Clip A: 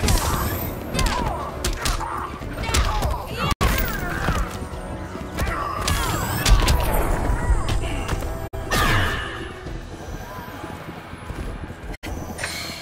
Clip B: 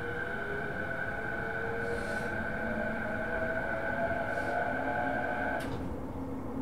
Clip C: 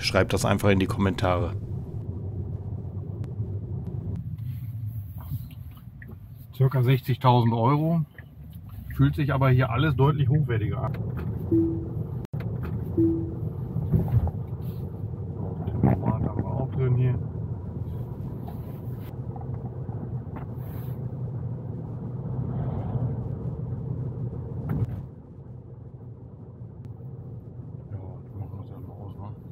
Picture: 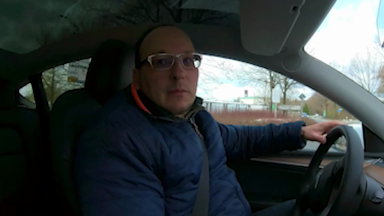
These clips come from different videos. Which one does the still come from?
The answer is C